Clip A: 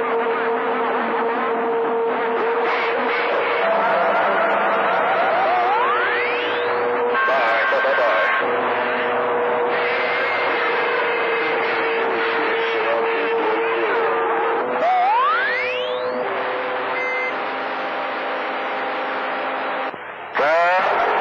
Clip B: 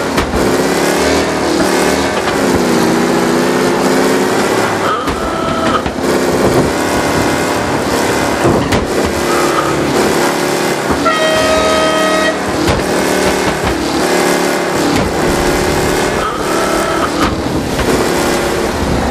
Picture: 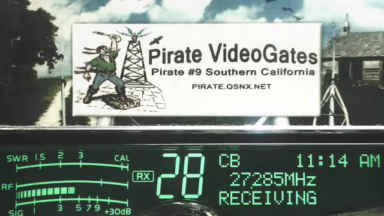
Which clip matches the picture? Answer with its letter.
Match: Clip A